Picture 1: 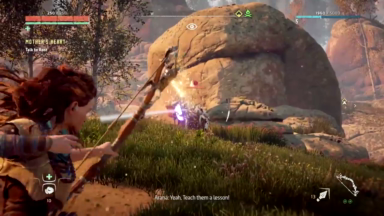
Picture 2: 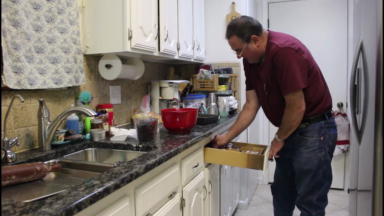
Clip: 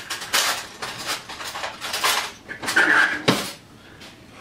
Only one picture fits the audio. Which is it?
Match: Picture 2